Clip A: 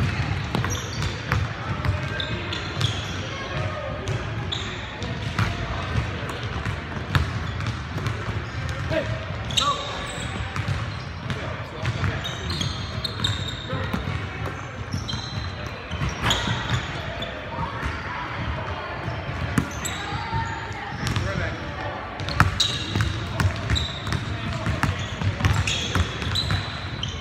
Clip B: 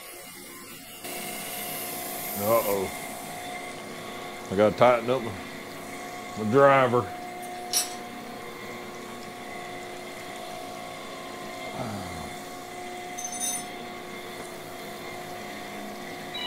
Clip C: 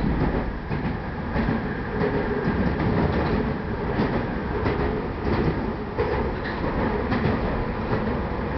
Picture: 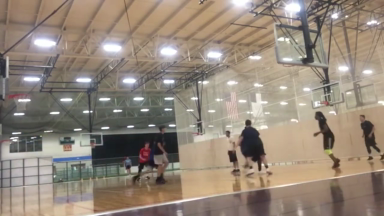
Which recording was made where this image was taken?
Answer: A